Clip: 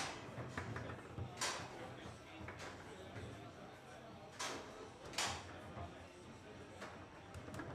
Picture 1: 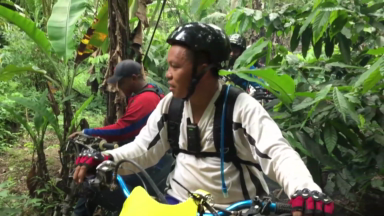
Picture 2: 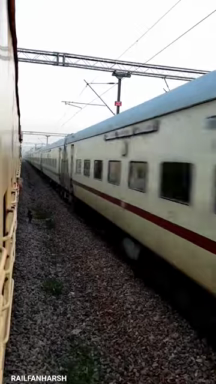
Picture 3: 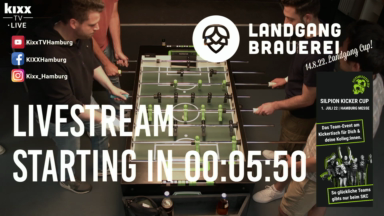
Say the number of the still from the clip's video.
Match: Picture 3